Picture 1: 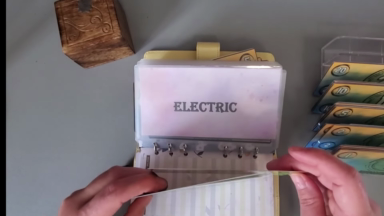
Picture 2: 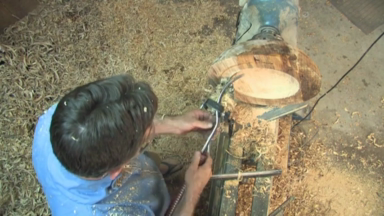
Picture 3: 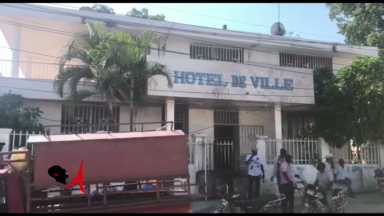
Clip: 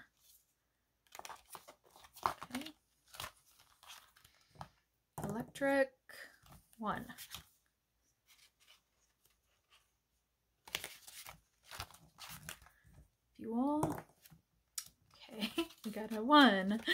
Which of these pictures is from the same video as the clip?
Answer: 1